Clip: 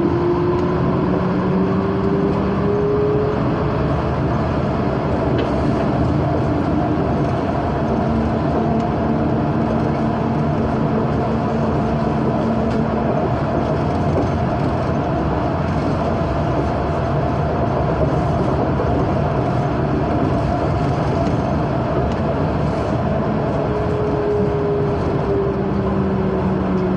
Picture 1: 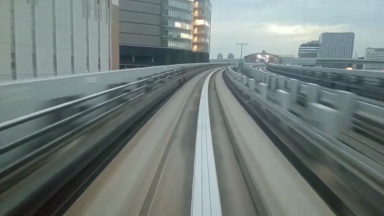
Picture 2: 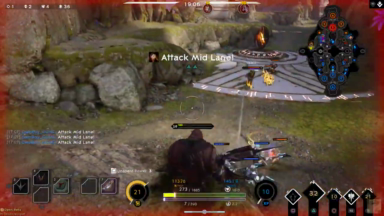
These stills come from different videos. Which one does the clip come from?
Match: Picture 1